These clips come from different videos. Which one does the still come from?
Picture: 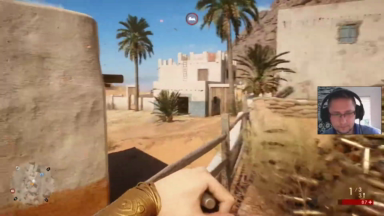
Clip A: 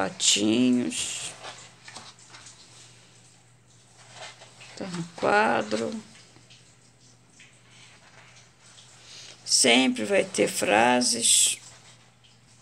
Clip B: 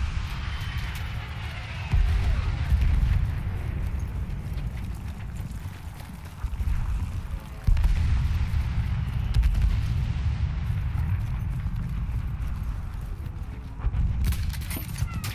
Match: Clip B